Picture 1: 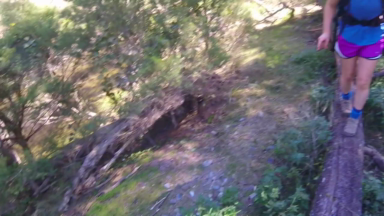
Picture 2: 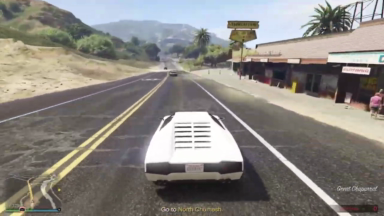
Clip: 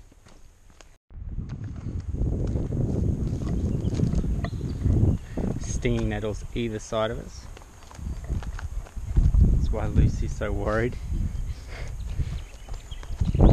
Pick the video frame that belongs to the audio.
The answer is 1